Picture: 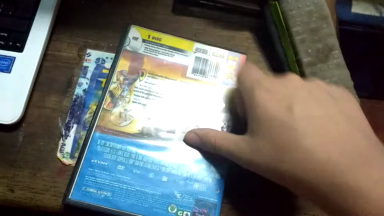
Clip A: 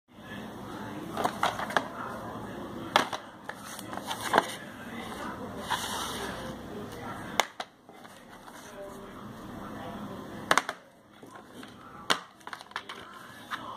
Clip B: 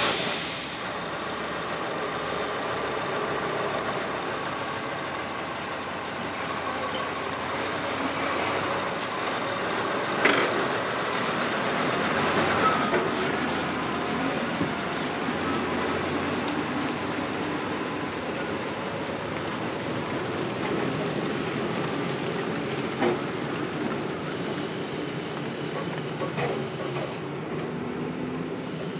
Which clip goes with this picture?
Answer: A